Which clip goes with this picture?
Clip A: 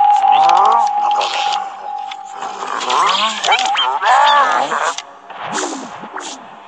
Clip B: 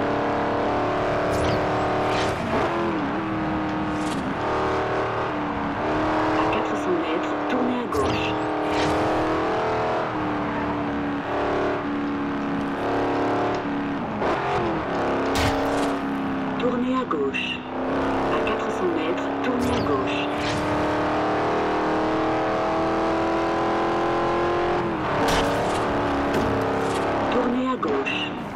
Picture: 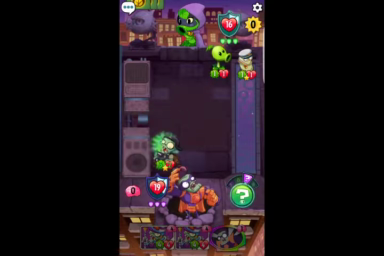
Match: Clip A